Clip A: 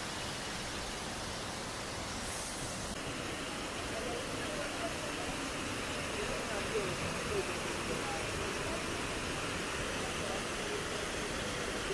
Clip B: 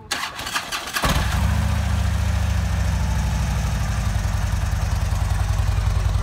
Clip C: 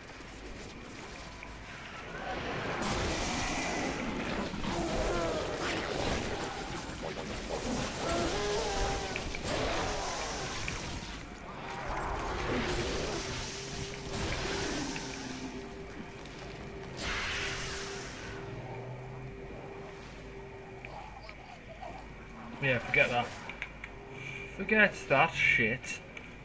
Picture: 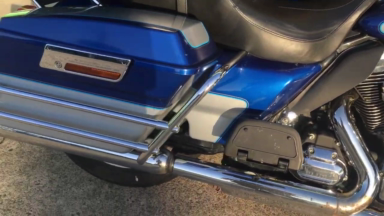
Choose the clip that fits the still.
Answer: B